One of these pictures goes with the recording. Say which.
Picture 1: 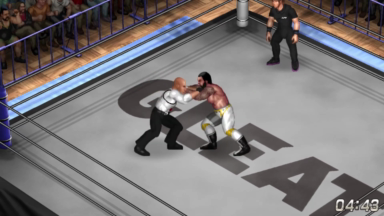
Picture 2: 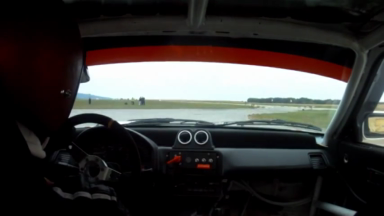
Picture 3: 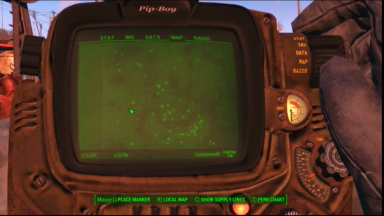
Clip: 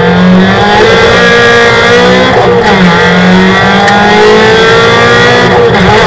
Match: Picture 2